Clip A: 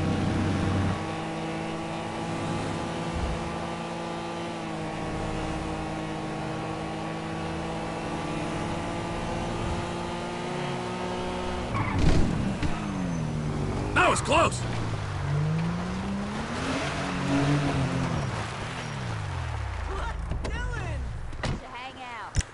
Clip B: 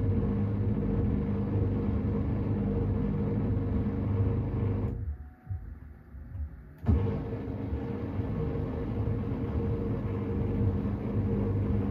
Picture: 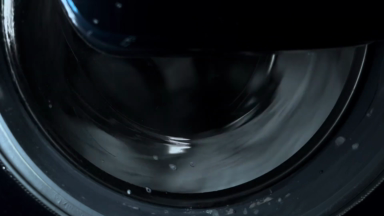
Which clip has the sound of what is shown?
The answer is B